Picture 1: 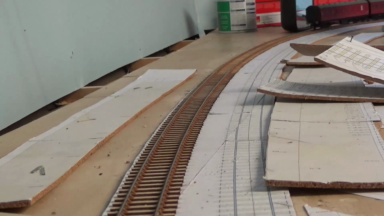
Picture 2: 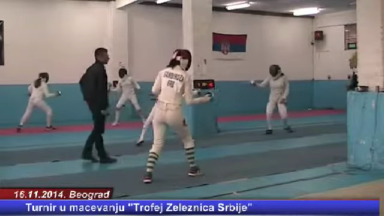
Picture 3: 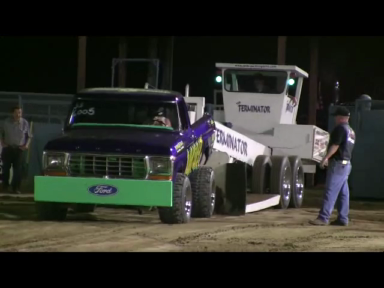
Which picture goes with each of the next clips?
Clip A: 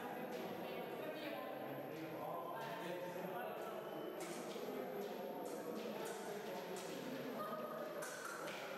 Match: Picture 2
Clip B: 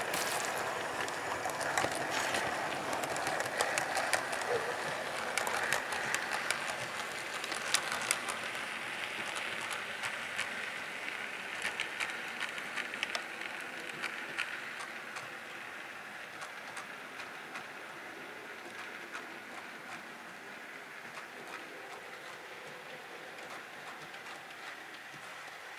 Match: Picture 1